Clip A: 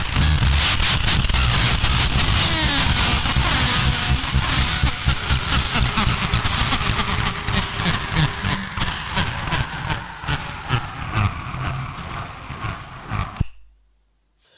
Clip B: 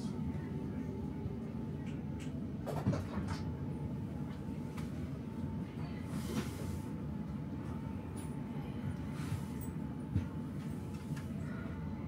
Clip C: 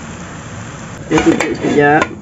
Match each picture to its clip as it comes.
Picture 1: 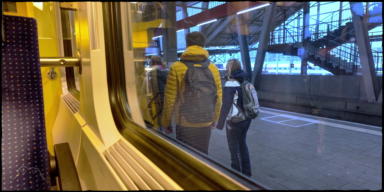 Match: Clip B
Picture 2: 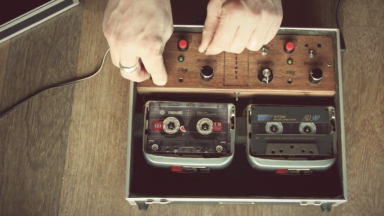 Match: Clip A